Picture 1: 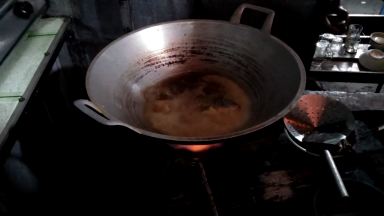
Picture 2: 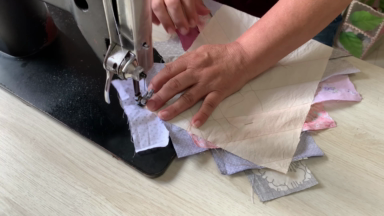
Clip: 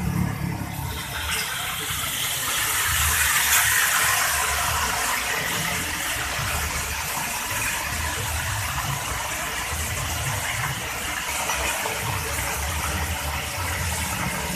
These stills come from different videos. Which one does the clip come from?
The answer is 1